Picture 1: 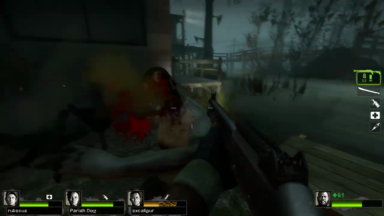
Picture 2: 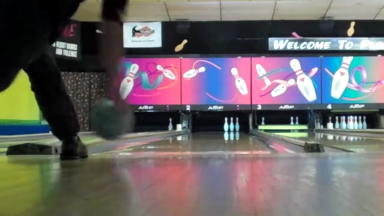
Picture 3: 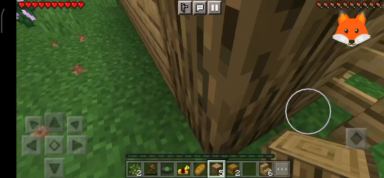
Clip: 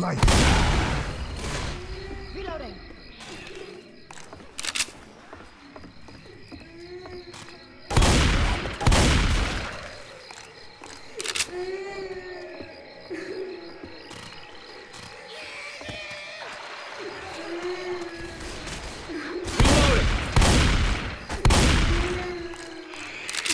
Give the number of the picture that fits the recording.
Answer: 1